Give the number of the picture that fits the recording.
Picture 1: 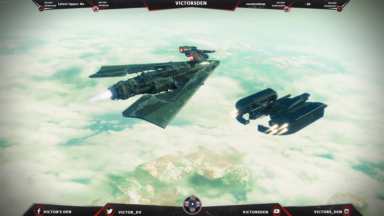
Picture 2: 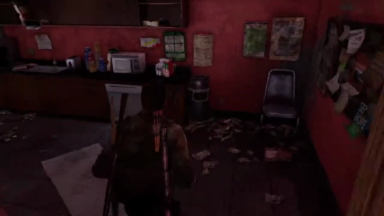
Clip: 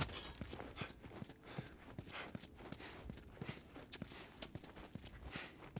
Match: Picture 2